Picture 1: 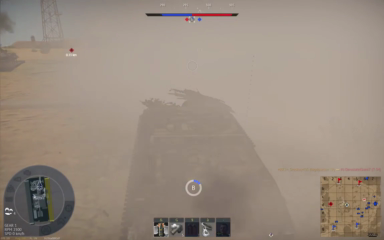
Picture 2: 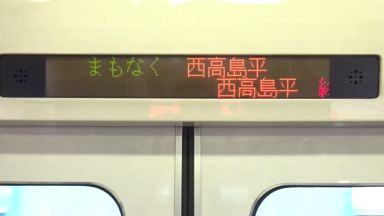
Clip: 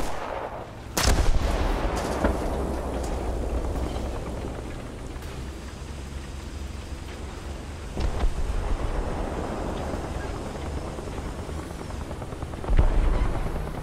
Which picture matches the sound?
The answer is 1